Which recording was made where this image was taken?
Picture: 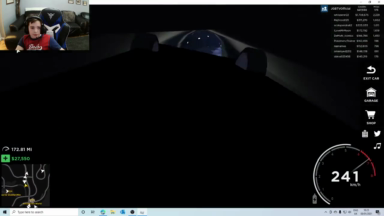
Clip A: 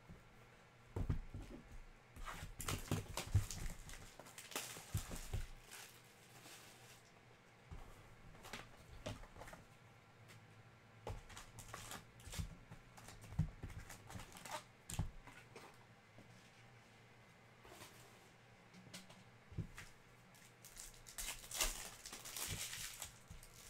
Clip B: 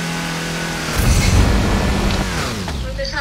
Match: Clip B